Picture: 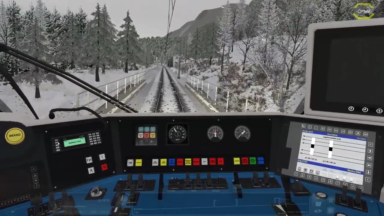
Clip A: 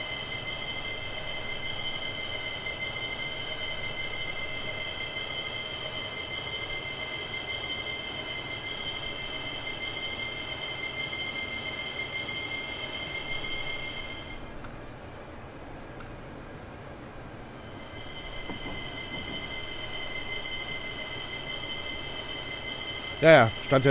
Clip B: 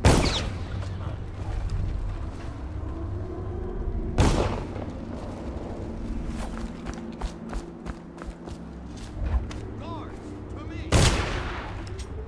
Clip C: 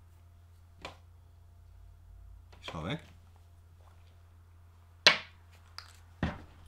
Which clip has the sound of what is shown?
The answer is A